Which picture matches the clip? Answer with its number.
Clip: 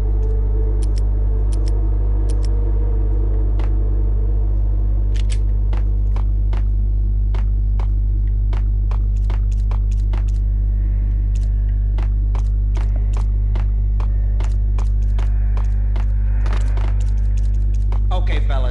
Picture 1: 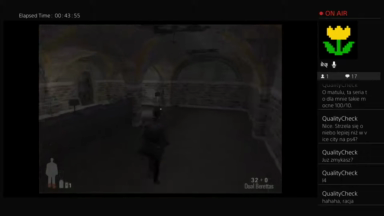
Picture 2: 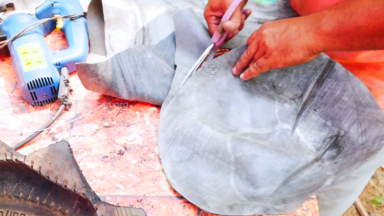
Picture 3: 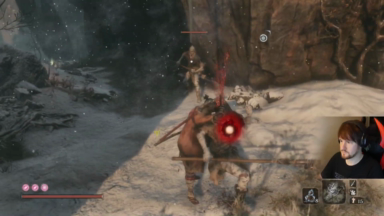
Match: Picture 1